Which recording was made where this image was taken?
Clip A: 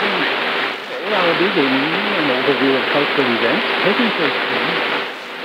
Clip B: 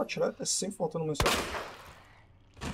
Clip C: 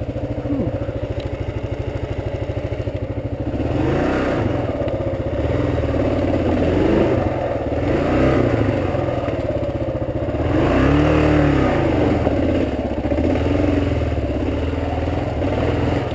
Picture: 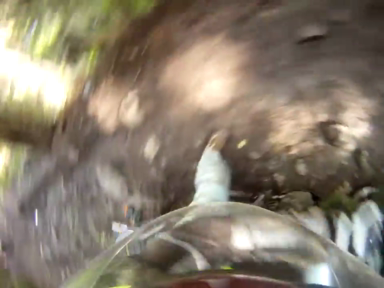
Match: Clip C